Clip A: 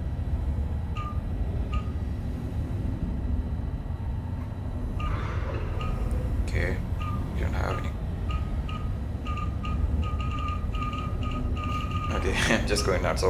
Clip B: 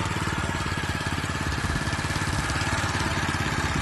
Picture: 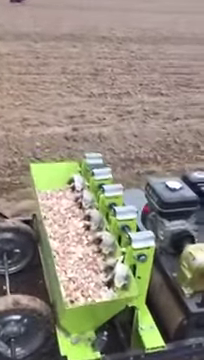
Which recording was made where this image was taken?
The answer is B